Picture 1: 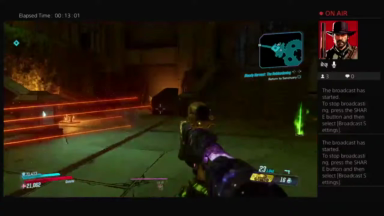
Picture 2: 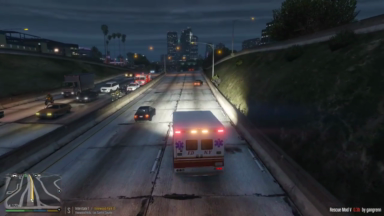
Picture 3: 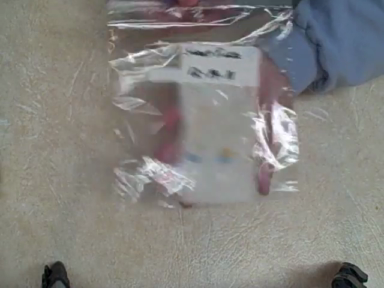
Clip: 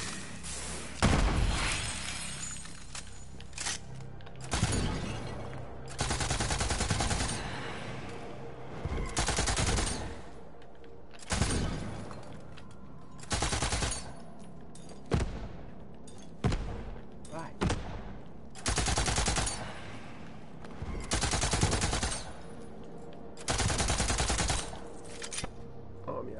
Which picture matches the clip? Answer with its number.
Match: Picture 1